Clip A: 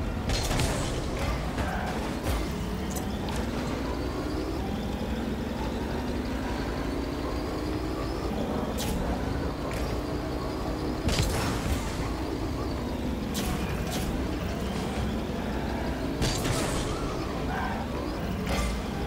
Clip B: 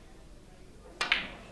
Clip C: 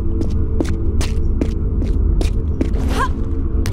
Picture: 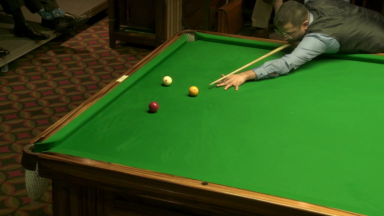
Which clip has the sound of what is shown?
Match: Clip B